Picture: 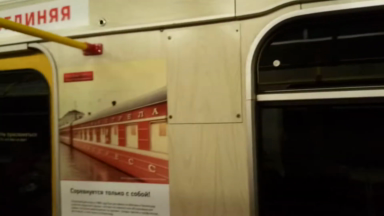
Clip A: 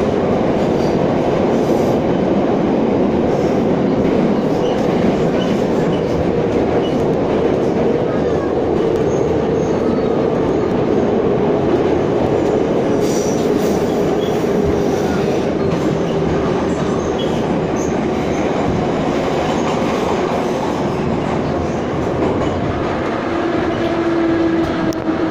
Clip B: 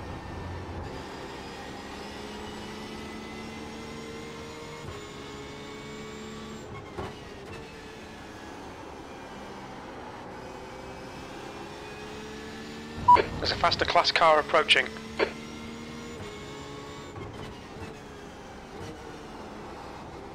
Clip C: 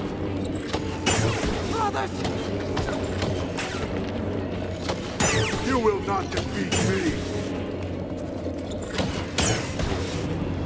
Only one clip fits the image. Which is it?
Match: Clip A